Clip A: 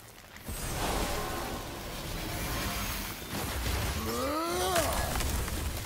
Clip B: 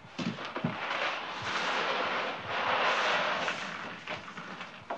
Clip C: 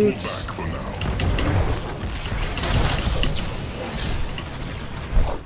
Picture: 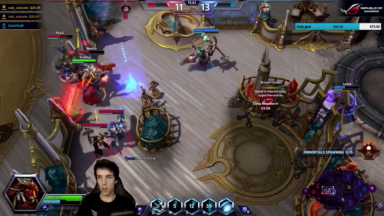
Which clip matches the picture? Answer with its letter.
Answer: C